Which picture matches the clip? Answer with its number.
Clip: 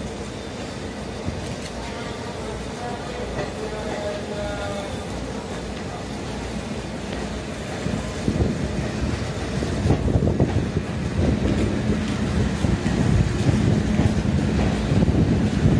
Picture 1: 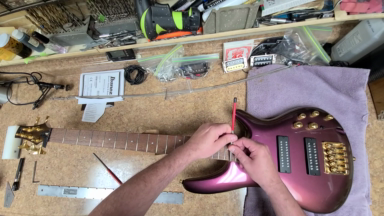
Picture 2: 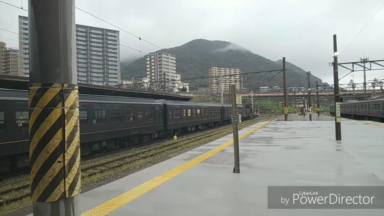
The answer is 2